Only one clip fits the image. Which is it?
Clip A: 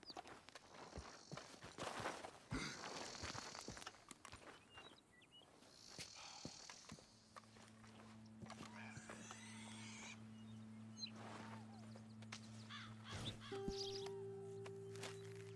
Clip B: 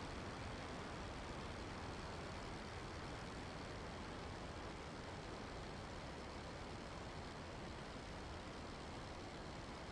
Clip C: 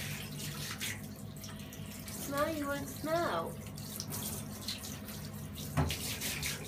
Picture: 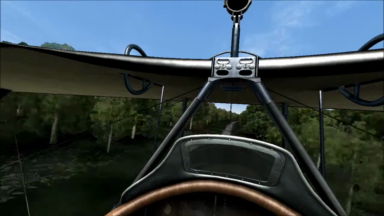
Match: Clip B